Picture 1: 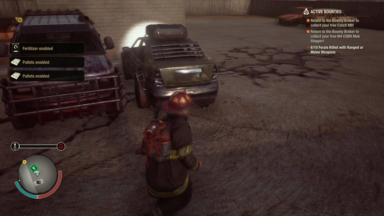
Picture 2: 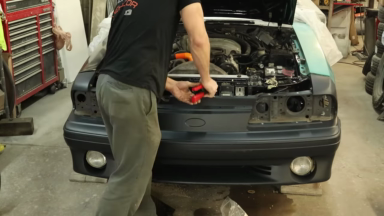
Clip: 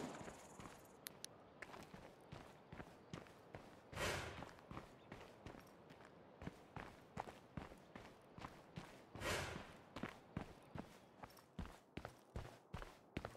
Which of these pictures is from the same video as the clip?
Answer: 1